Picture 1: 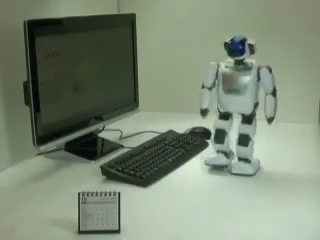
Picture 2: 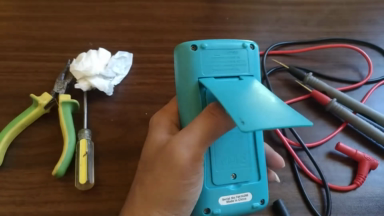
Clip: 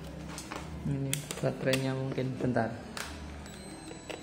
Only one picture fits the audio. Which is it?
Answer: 2